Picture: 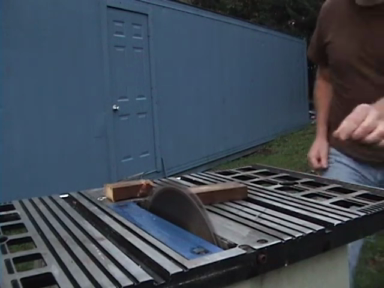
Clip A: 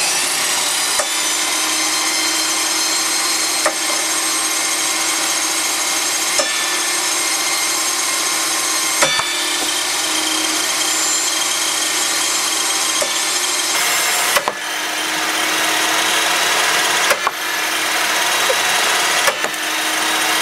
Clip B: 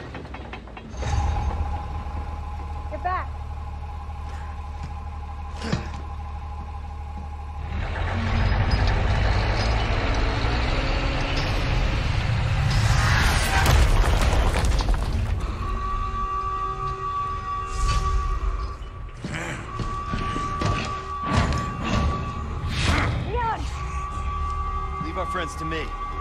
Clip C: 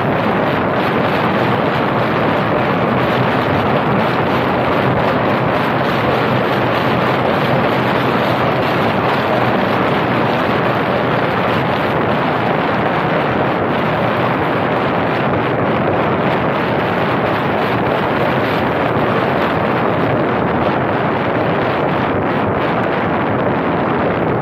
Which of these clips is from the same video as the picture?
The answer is A